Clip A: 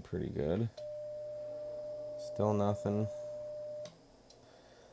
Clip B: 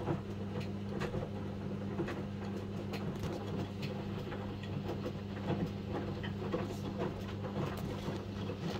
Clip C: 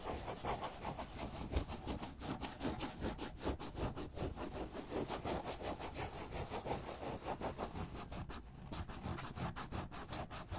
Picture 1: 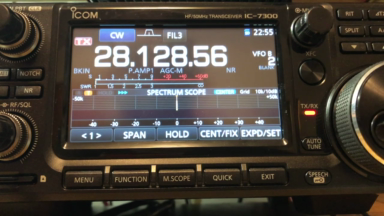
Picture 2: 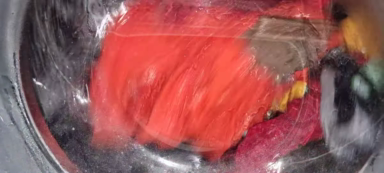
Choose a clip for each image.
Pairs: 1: A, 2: B